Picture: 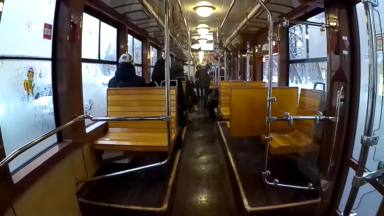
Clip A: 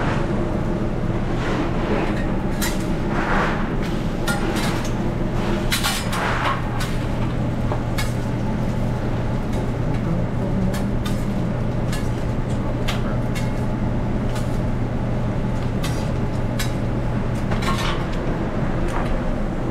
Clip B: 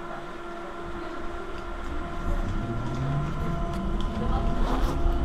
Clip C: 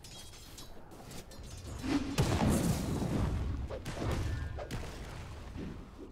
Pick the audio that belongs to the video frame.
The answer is B